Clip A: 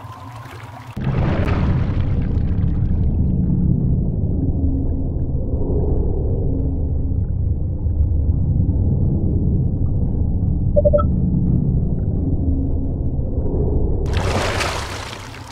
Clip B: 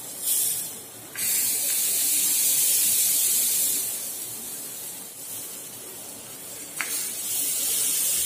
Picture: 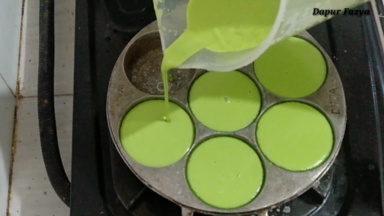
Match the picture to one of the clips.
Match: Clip B